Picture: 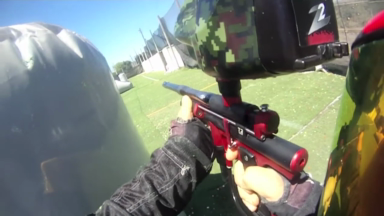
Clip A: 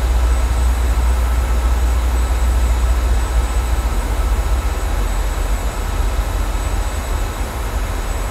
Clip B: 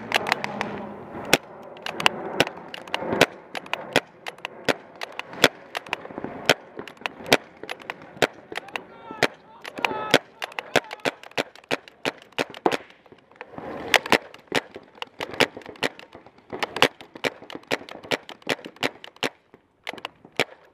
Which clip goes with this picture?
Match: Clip B